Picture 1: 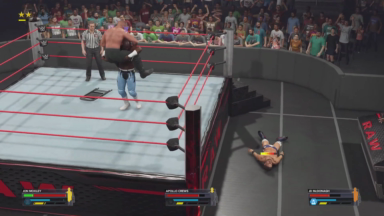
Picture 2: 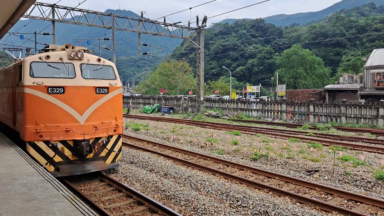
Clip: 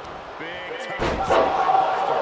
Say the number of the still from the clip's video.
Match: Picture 1